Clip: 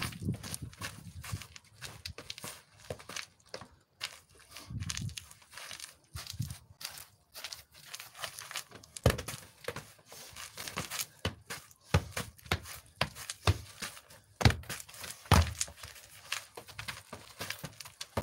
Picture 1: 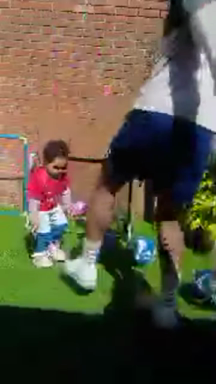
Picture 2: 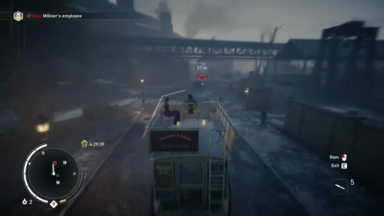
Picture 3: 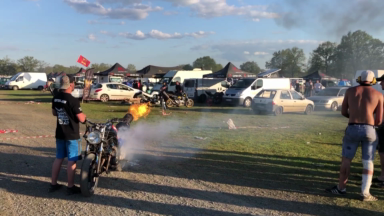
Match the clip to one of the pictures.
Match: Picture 1